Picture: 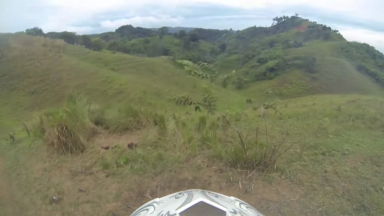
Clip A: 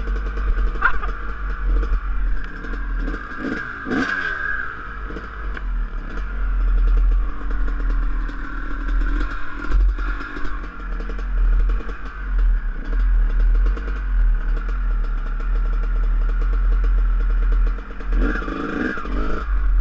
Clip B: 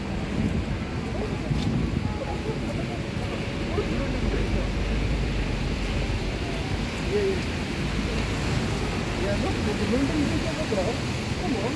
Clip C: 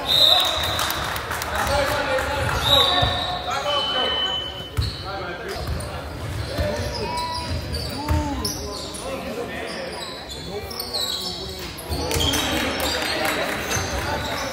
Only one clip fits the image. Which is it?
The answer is A